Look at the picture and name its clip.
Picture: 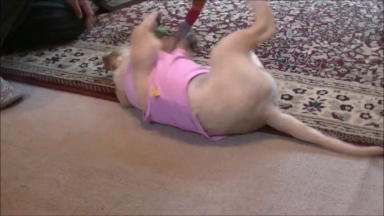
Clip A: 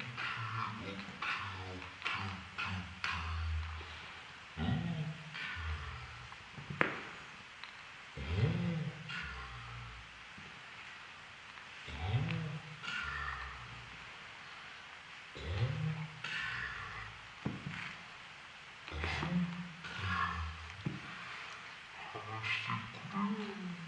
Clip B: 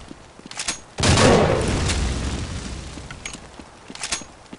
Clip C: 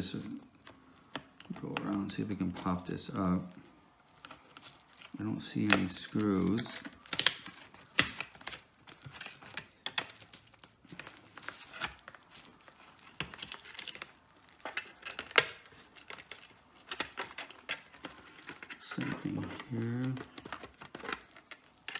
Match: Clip A